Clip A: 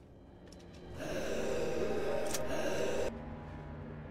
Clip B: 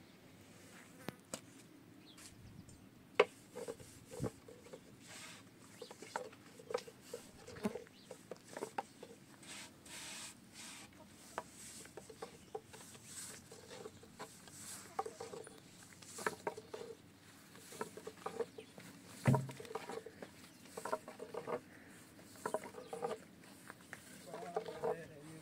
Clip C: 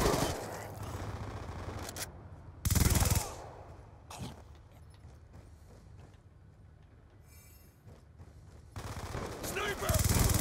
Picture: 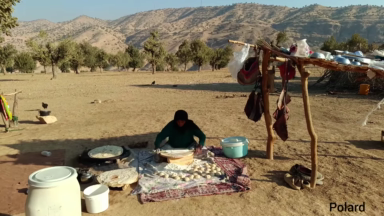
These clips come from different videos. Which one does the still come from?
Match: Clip B